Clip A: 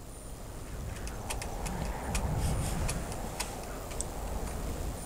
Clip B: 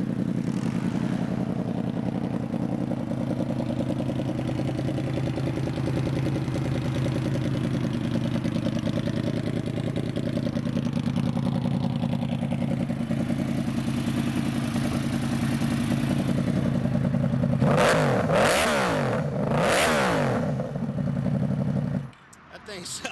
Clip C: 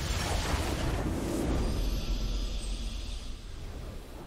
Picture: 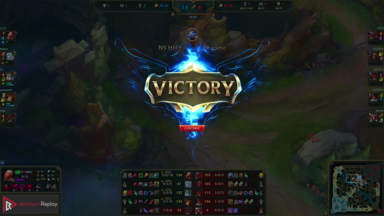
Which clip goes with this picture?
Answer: C